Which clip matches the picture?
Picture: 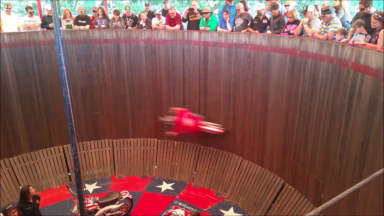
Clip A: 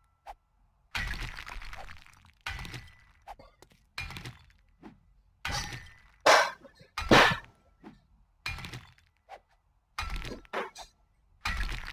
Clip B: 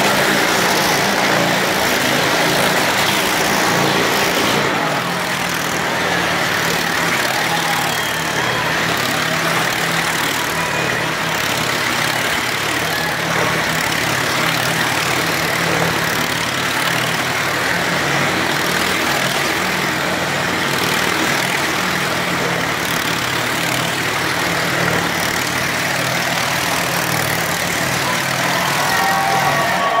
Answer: B